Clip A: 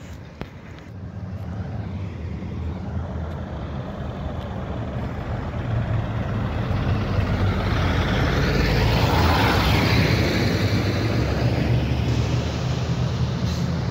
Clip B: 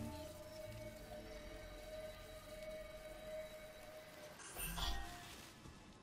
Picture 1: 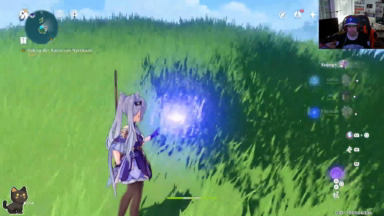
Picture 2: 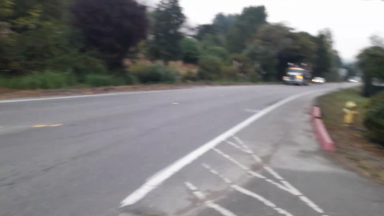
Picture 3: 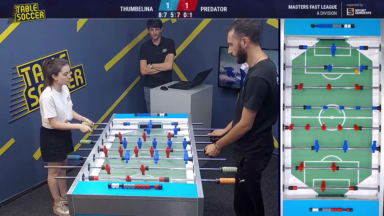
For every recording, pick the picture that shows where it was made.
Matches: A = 2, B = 1